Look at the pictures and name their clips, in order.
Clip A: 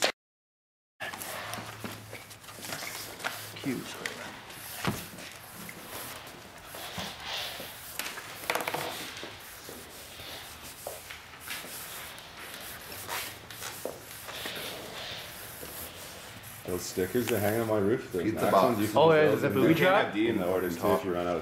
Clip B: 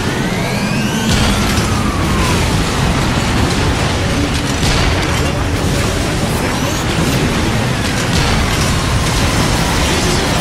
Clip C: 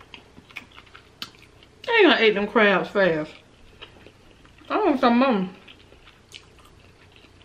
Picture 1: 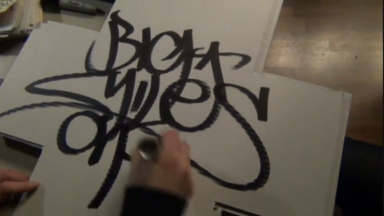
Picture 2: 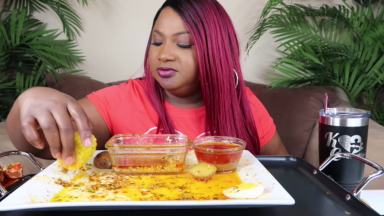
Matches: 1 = A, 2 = C